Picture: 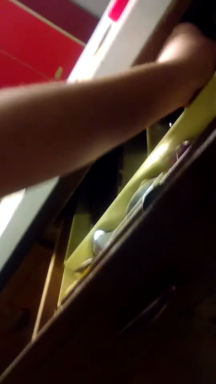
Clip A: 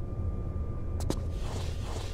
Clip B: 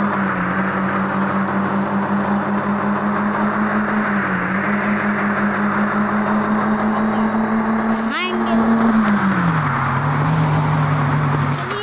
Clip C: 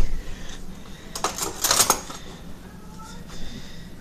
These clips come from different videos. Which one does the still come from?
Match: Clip C